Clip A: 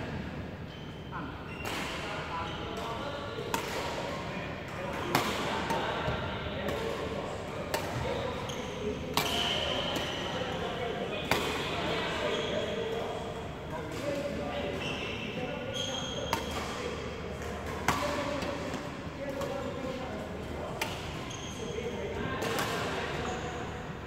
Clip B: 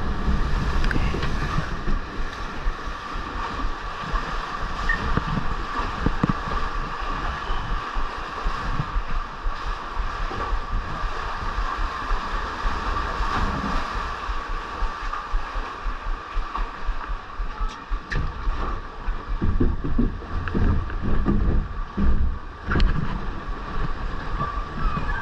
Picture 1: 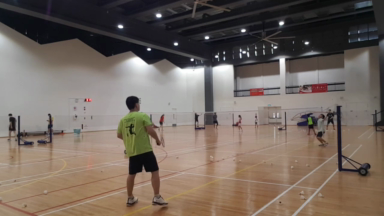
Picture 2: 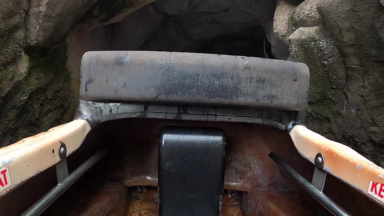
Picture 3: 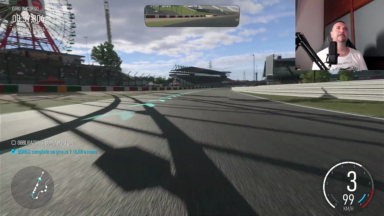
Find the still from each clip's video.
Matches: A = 1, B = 2